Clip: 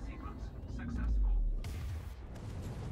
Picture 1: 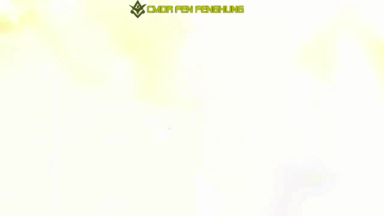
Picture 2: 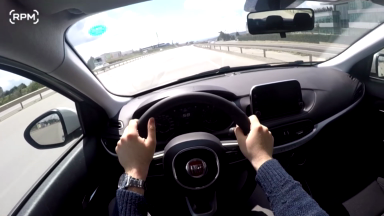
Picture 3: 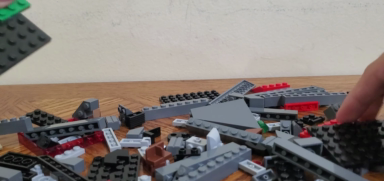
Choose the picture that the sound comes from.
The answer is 1